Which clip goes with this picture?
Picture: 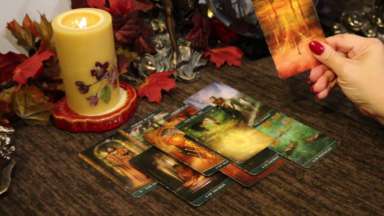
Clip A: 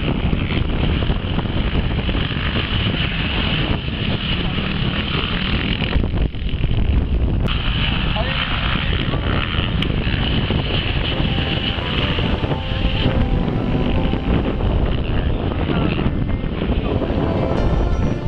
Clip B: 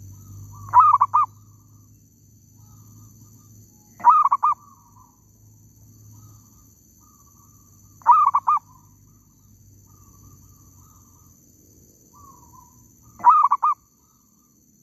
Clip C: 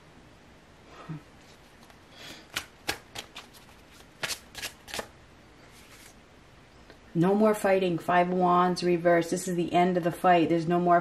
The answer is C